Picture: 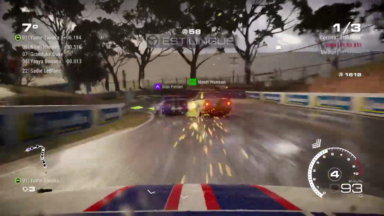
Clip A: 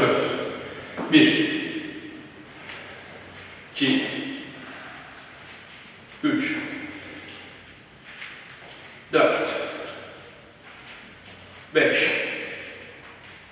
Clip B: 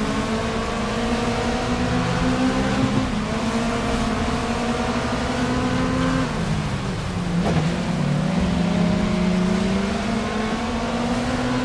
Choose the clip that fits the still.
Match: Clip B